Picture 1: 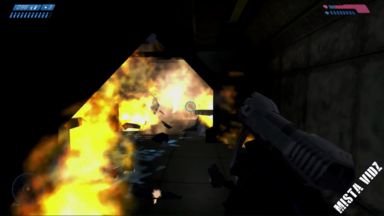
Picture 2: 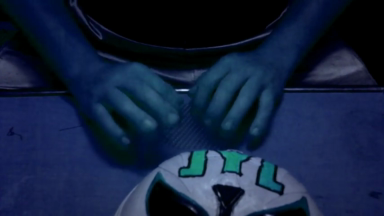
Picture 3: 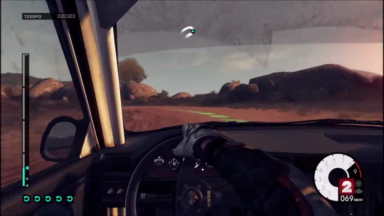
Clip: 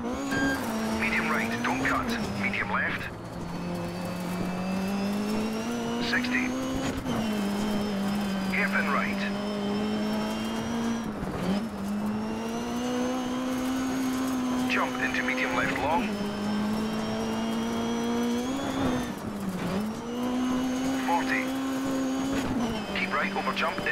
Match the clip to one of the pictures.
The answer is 3